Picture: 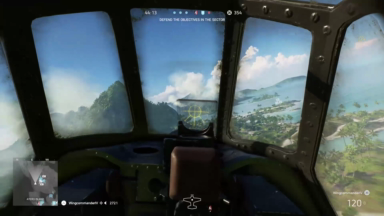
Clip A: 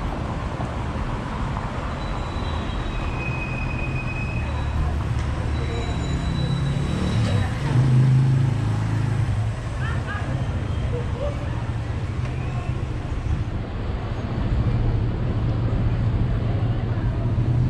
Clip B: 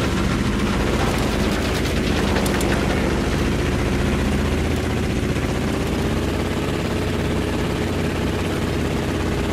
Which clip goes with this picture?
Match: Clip B